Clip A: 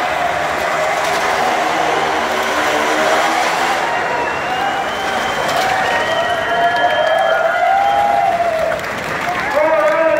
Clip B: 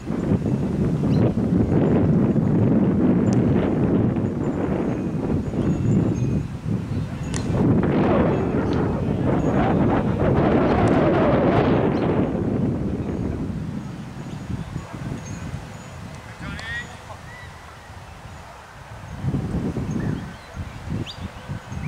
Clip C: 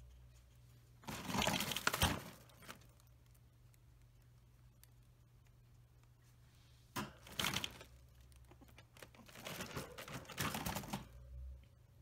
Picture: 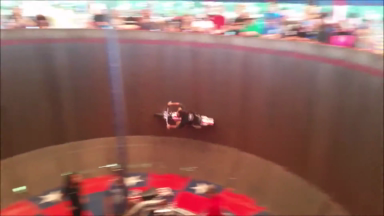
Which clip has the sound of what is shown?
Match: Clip A